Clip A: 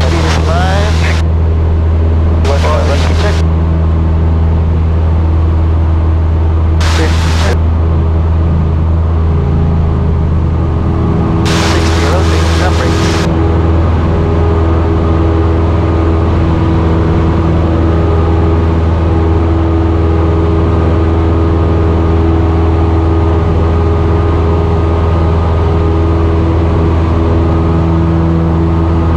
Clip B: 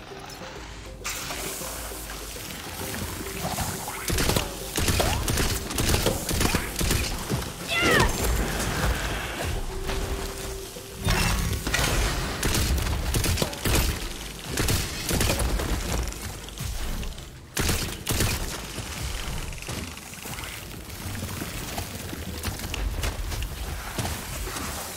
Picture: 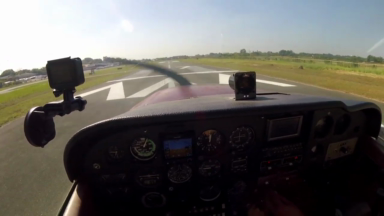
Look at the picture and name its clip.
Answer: A